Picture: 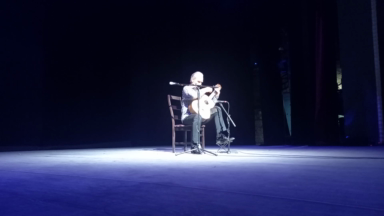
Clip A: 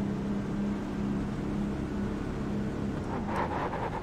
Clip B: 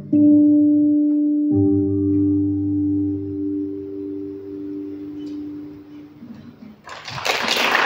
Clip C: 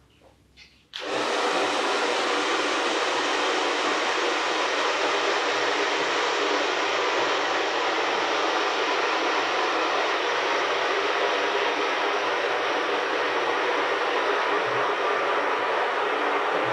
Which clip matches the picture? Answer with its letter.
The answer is B